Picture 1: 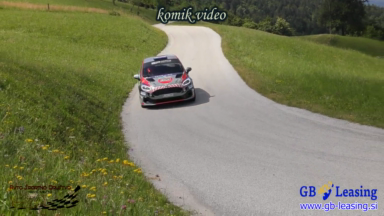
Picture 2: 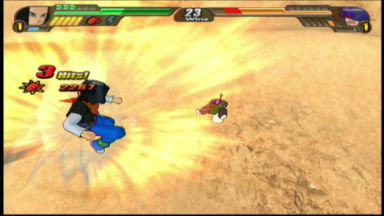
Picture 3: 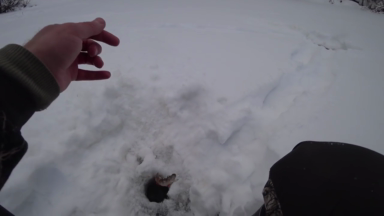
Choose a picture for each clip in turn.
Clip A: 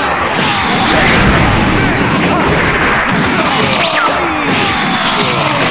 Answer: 2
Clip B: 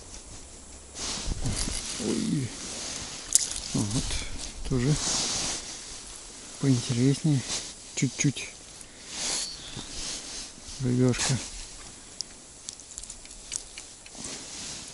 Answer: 3